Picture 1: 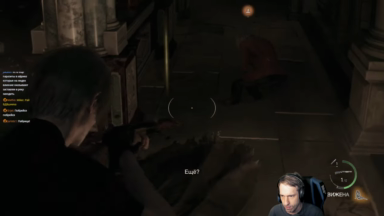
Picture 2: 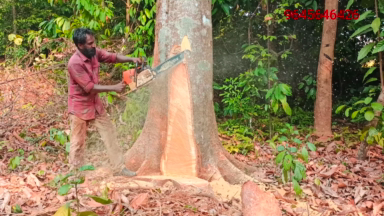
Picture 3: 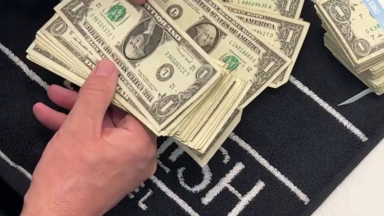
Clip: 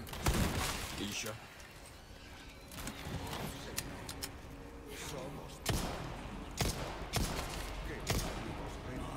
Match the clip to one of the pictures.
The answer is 1